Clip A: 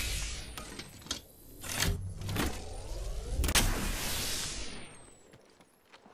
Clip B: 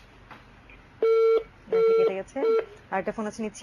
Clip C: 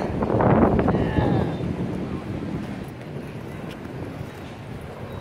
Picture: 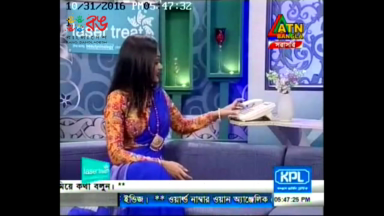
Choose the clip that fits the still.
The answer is B